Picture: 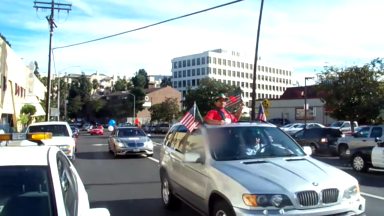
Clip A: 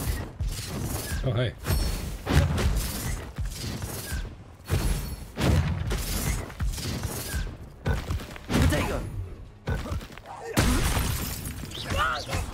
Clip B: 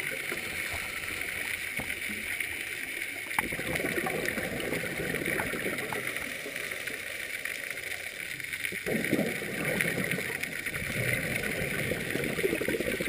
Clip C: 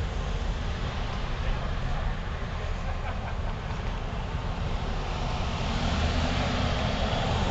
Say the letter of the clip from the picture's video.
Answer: C